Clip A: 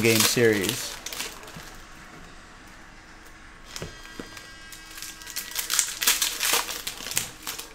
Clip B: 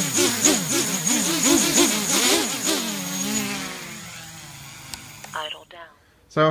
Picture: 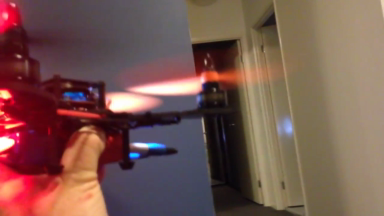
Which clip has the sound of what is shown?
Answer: B